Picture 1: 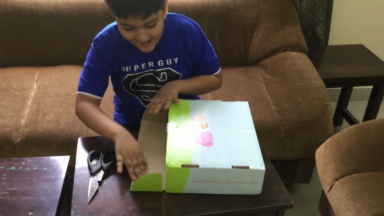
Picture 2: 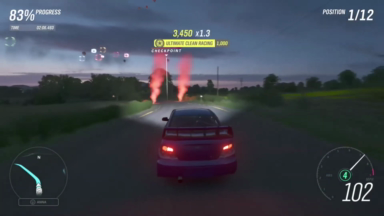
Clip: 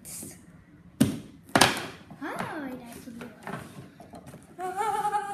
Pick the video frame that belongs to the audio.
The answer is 1